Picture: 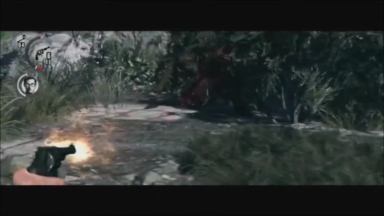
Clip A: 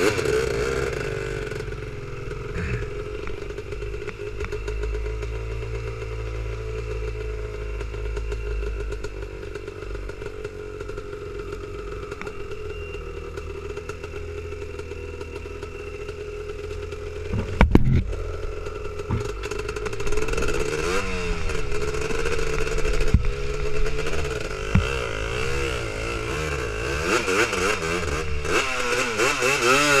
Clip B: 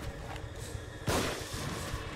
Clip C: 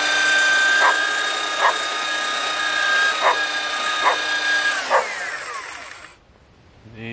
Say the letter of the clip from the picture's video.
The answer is B